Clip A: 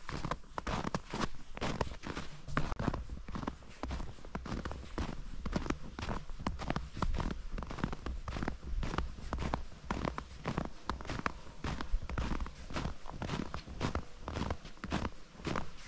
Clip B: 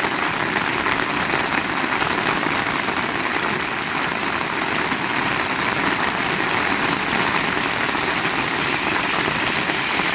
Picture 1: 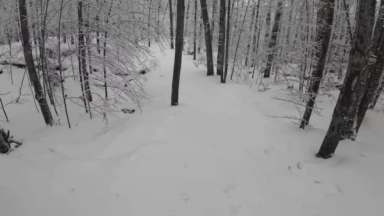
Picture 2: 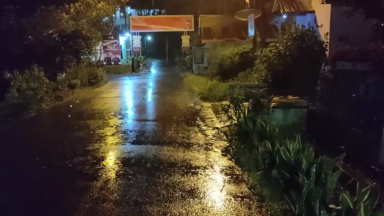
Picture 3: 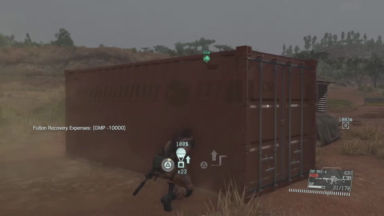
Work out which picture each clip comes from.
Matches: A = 1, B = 2